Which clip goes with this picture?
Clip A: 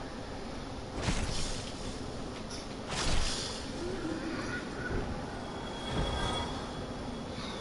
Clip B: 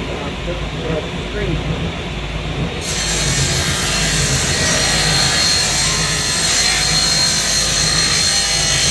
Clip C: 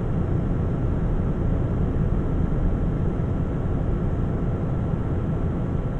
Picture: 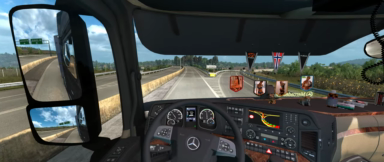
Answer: C